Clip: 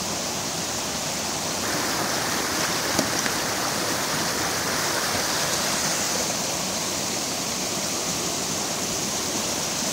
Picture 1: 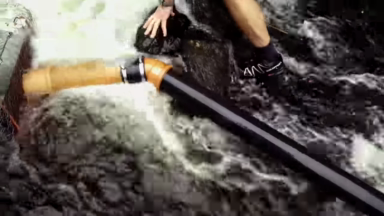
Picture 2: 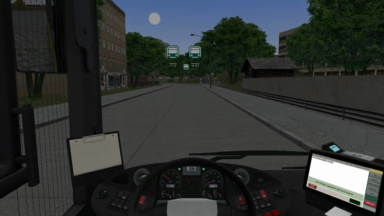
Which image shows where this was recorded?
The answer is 1